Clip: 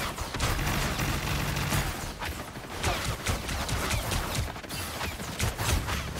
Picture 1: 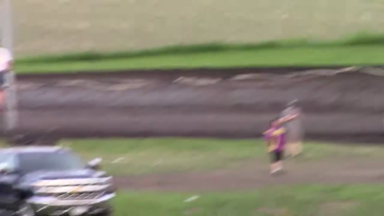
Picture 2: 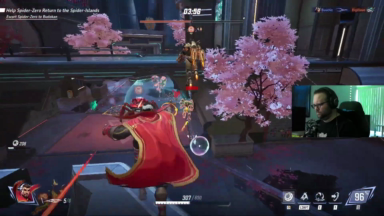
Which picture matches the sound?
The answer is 2